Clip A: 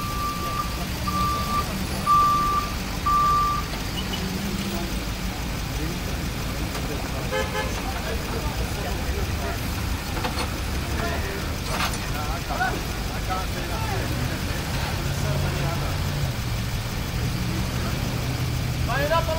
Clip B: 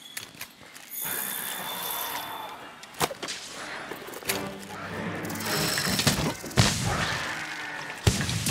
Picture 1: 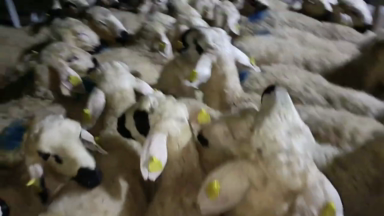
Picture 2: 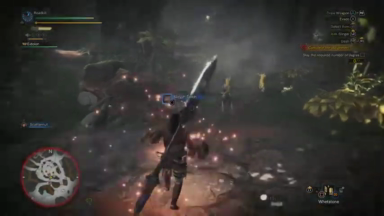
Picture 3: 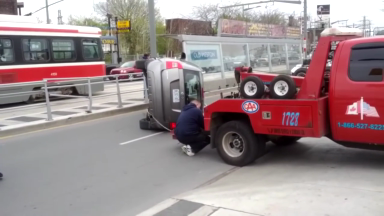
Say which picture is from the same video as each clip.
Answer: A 3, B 2